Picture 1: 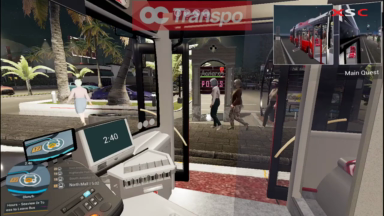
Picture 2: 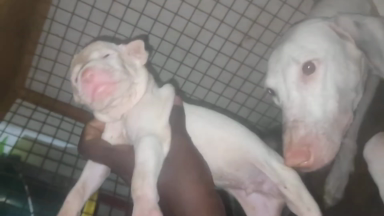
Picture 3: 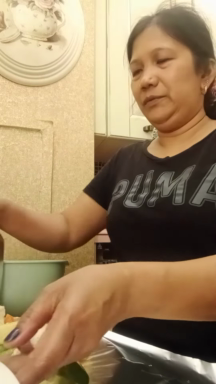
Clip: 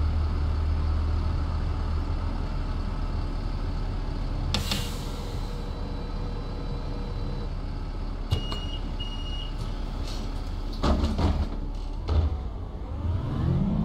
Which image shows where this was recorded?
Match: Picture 1